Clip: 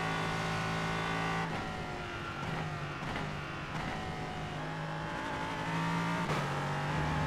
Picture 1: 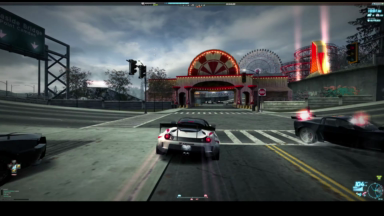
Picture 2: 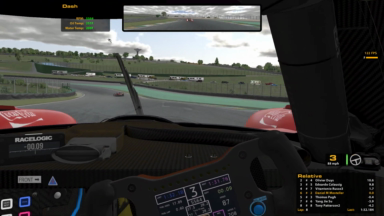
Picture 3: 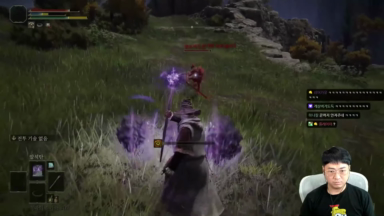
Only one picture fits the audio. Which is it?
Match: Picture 2